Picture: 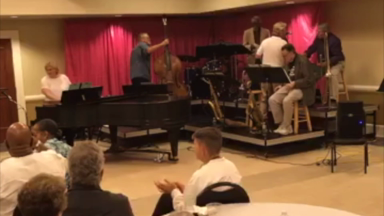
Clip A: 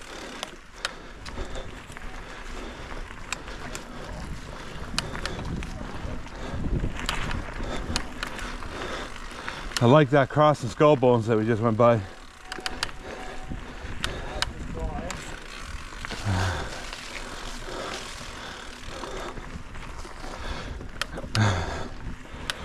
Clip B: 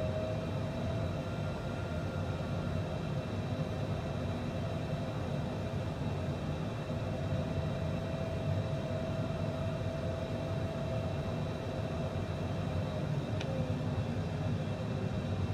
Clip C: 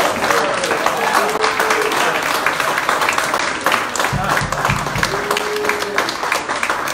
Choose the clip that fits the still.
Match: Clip C